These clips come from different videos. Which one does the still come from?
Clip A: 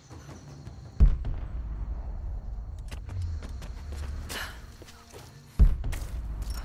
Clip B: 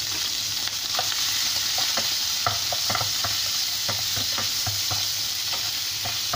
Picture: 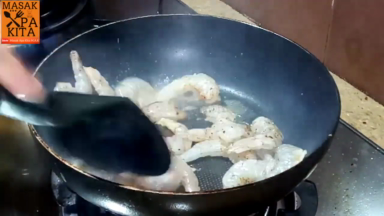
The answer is B